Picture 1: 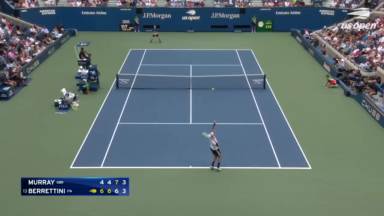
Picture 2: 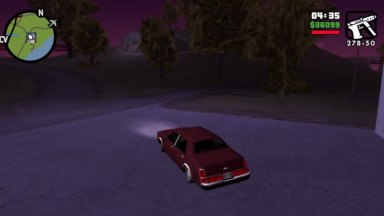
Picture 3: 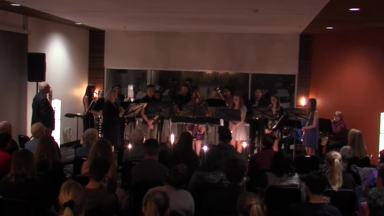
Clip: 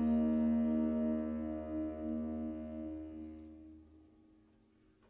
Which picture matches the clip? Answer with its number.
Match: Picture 3